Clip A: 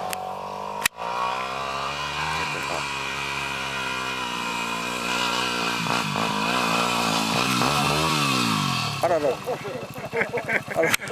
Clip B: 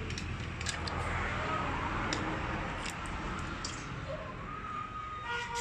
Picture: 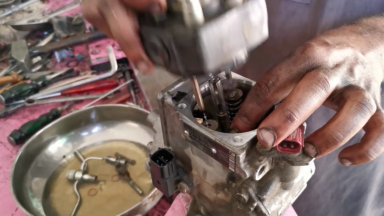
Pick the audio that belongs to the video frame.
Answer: B